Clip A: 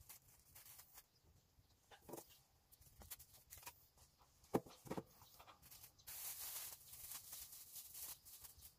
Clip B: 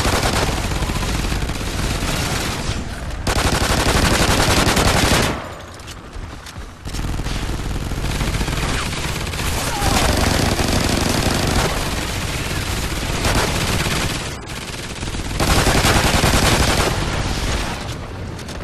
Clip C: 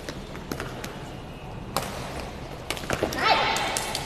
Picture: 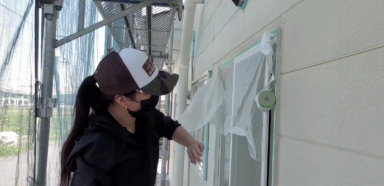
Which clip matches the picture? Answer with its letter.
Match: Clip A